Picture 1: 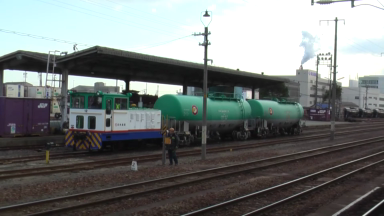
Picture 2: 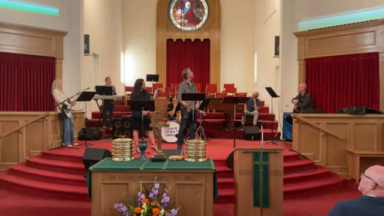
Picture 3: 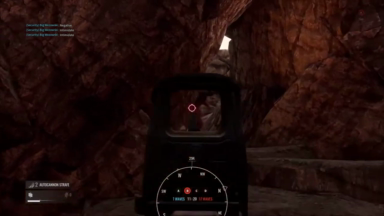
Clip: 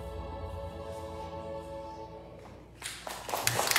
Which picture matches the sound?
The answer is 2